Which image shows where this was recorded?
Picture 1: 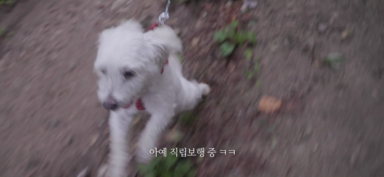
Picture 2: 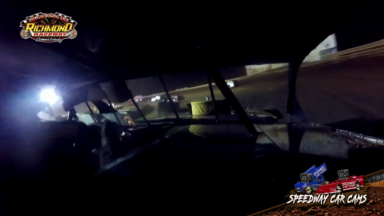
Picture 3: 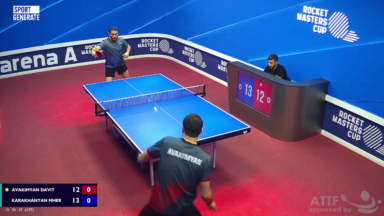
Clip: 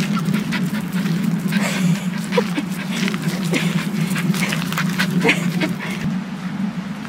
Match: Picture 1